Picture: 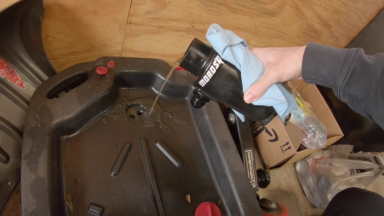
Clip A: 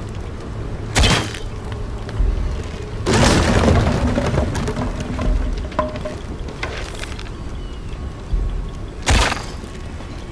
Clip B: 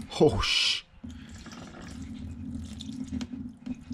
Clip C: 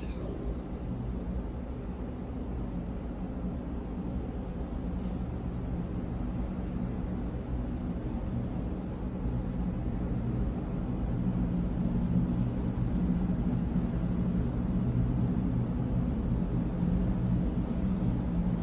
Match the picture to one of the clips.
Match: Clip B